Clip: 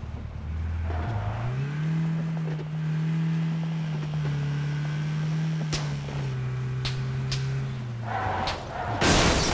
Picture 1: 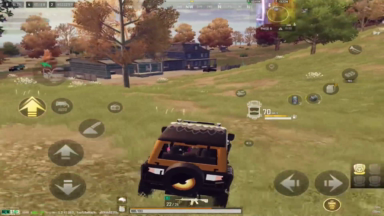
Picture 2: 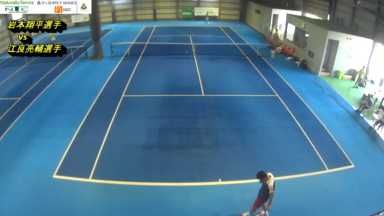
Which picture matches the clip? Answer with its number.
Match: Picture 1